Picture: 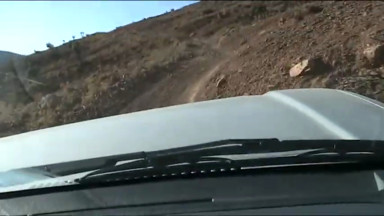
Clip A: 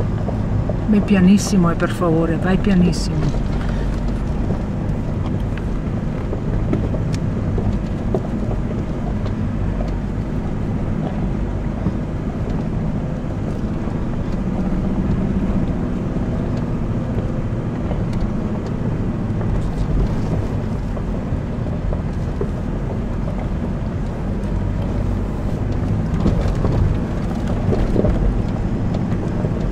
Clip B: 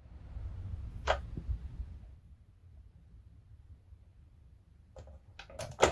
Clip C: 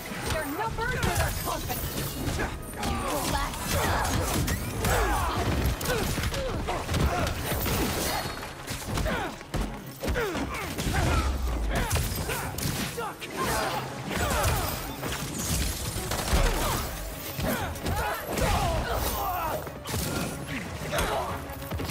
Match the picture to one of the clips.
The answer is A